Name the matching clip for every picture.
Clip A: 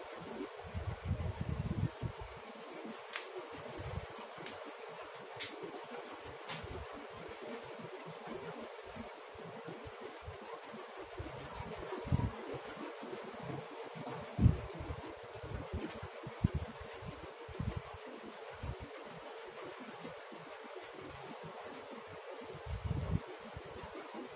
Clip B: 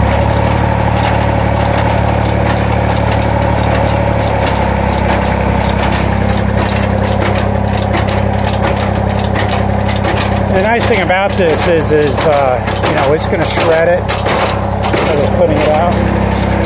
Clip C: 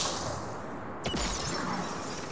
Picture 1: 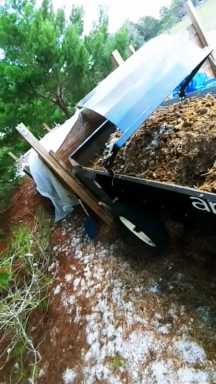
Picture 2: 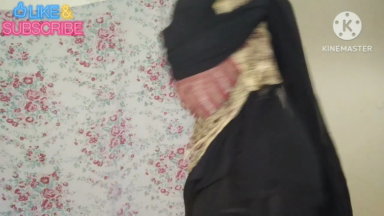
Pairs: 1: B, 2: A